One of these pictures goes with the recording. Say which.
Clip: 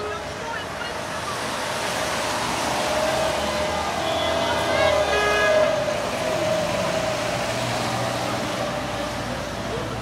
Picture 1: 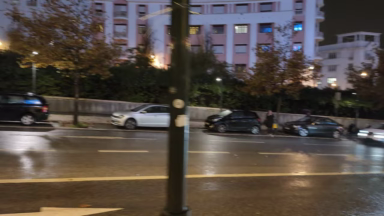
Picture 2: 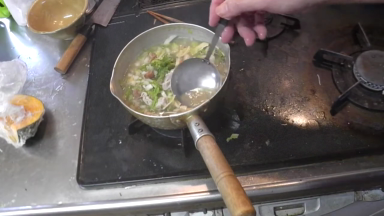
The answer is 1